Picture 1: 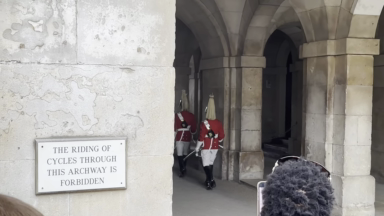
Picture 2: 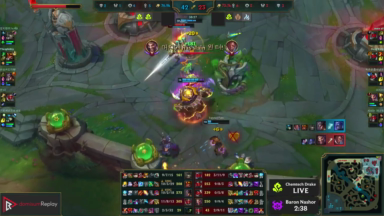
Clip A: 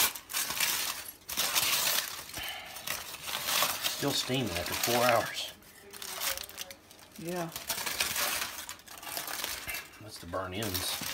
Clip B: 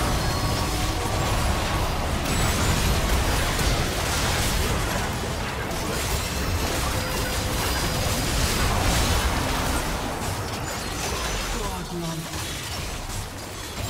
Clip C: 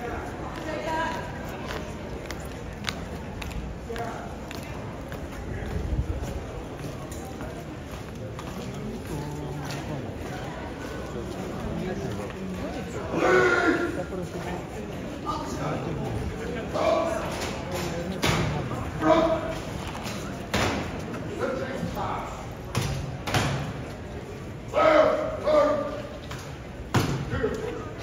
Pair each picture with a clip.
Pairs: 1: C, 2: B